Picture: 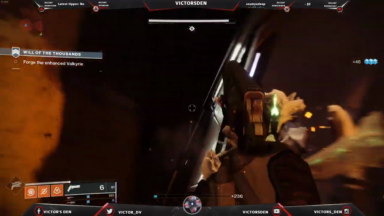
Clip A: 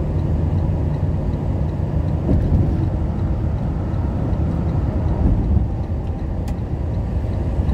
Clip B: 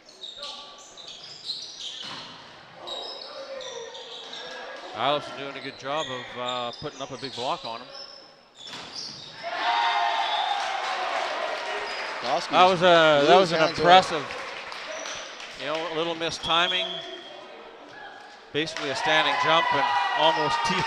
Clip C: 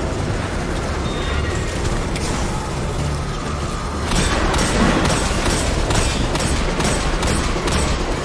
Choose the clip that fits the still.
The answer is C